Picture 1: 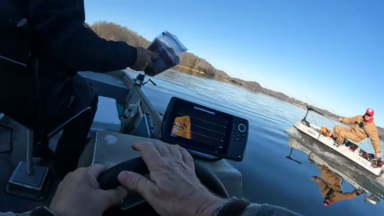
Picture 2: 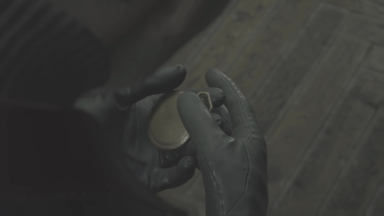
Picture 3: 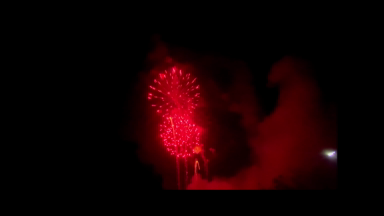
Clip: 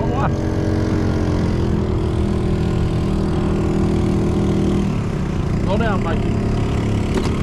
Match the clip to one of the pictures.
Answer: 1